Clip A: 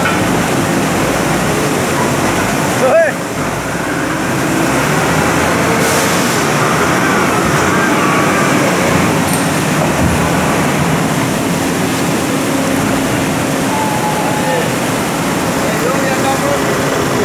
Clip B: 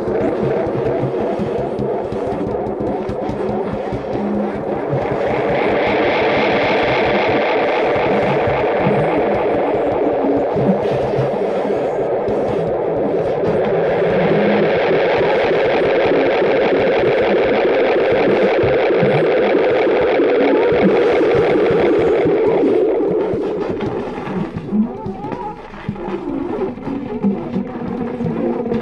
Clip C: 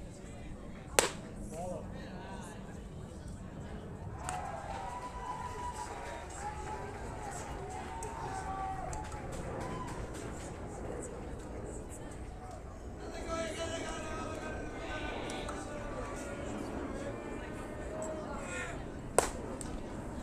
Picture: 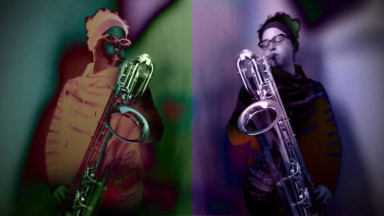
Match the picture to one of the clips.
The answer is B